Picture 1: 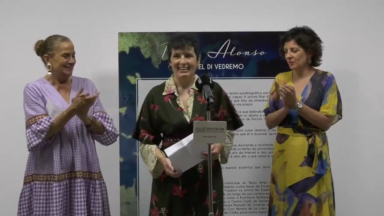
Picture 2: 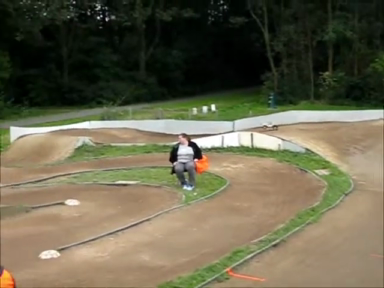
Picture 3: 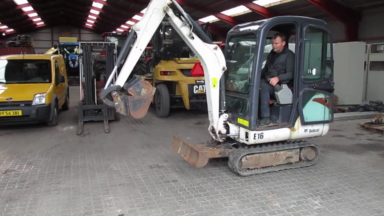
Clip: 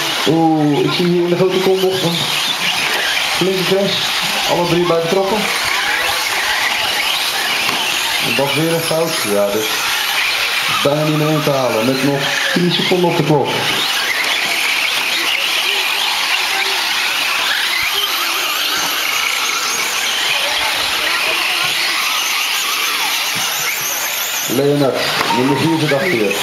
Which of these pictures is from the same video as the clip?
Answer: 2